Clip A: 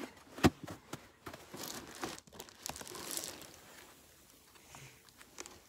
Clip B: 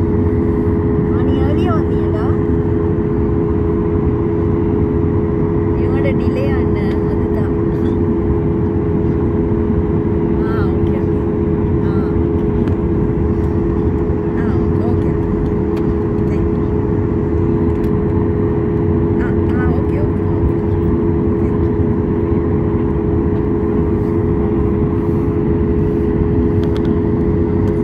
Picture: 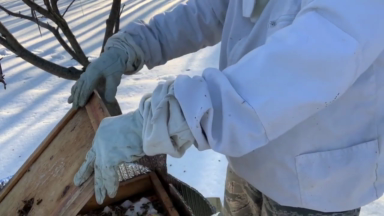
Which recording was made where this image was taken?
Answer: A